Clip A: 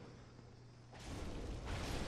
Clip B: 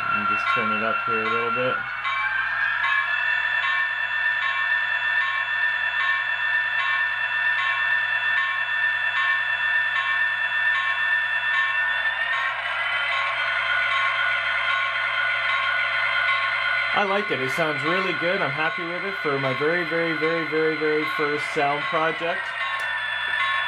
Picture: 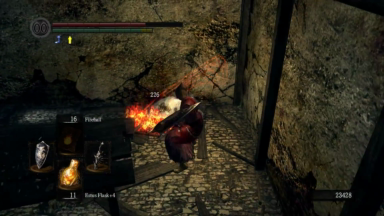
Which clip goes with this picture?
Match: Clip A